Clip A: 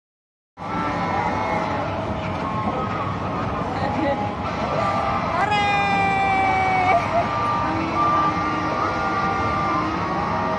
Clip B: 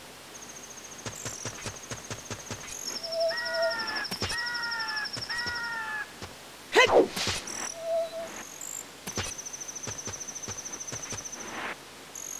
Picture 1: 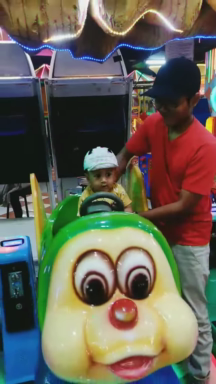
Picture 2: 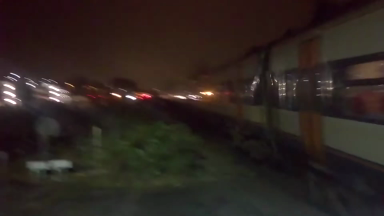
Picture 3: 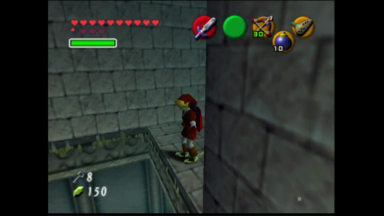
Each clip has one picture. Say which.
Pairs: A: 1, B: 3